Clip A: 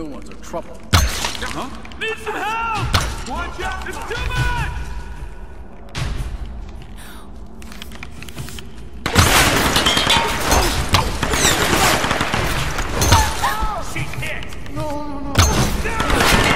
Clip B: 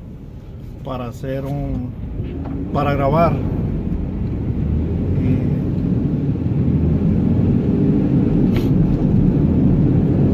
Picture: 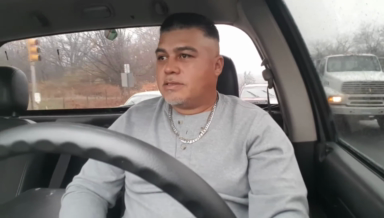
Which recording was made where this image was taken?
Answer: B